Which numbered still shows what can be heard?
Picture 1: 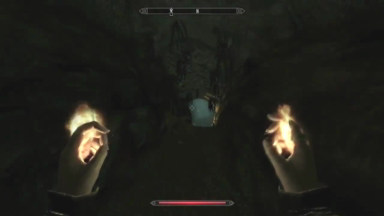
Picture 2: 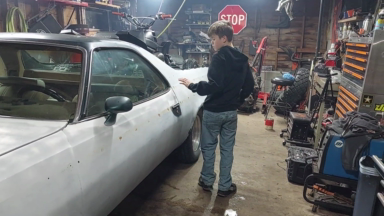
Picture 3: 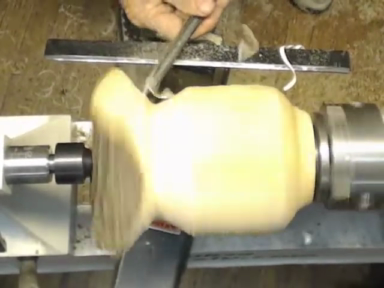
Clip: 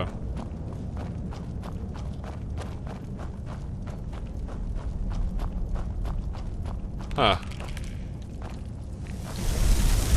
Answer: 1